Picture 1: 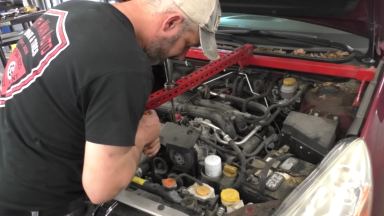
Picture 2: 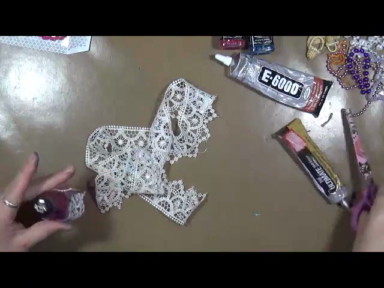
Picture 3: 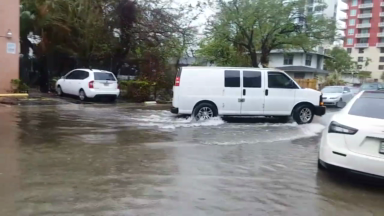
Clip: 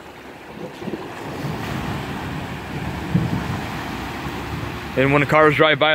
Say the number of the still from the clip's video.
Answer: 3